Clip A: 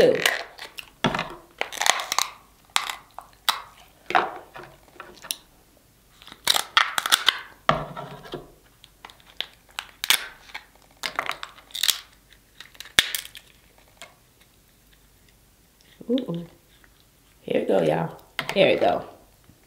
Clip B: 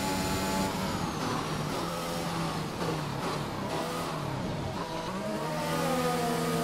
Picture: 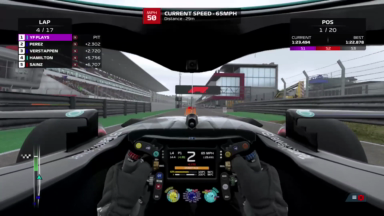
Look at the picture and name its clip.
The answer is B